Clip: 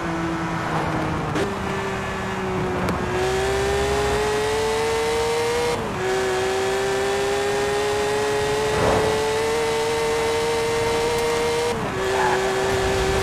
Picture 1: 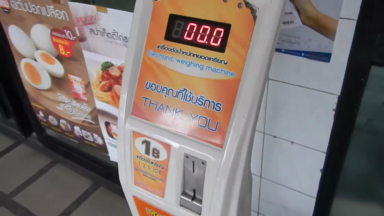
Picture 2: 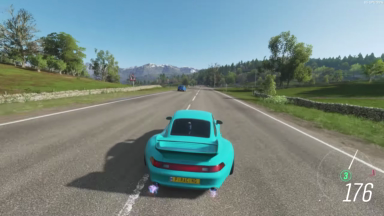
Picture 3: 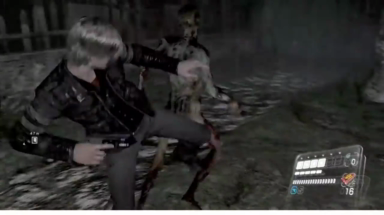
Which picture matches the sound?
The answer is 2